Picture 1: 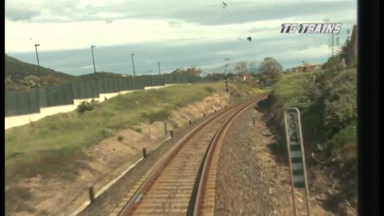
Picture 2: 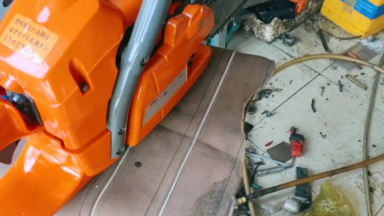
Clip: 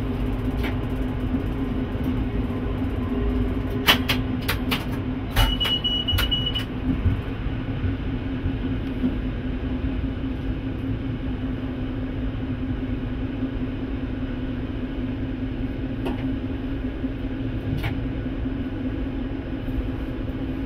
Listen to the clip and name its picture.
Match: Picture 1